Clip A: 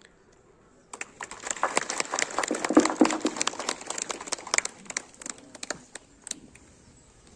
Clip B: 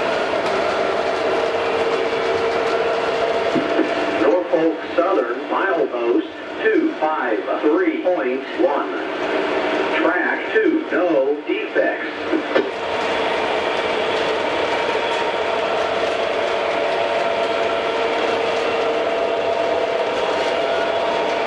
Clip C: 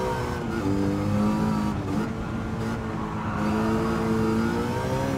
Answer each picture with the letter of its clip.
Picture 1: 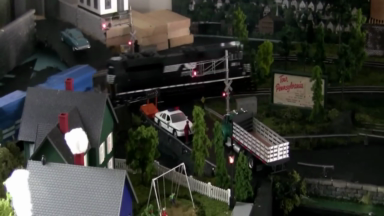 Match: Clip B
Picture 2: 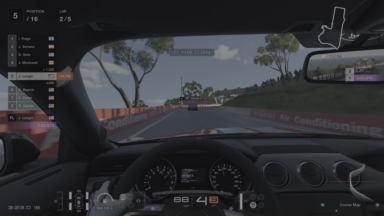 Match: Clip C